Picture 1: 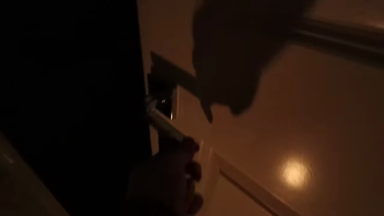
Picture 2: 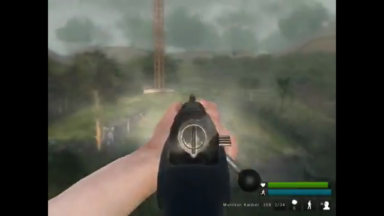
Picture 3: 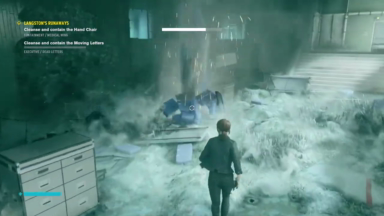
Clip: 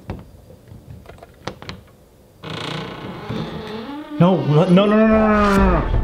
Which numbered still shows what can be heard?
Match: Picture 1